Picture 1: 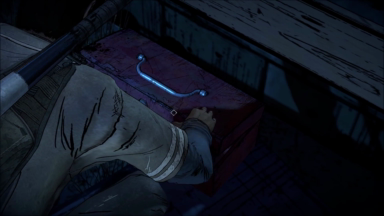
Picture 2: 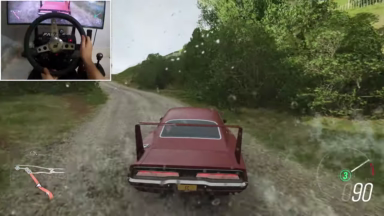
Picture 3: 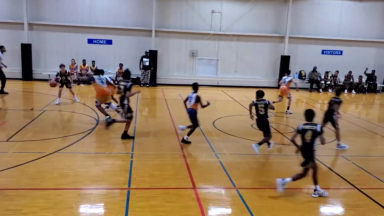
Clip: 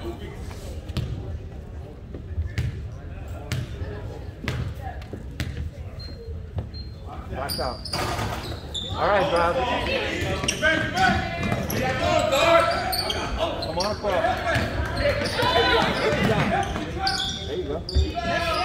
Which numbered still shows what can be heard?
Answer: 3